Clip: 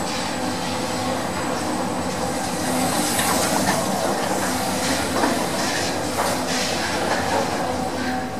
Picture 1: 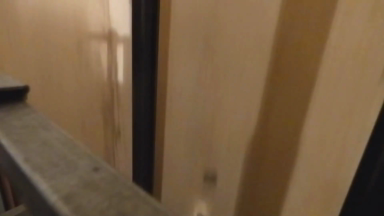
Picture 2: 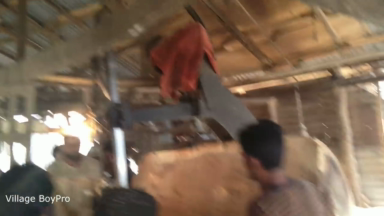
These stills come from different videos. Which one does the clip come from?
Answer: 1